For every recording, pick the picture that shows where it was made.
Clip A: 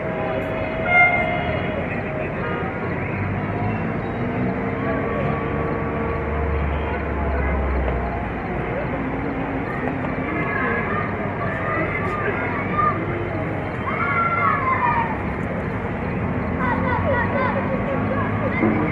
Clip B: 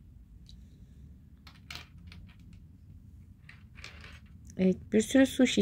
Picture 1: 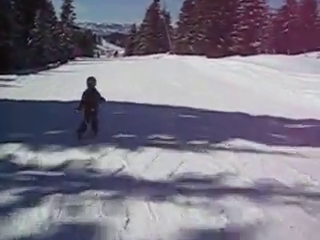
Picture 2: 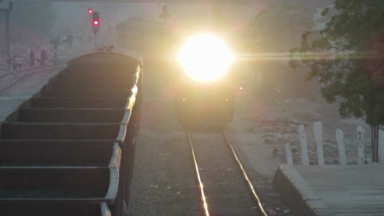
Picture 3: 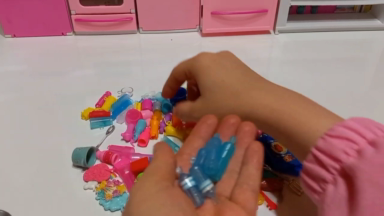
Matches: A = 2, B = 3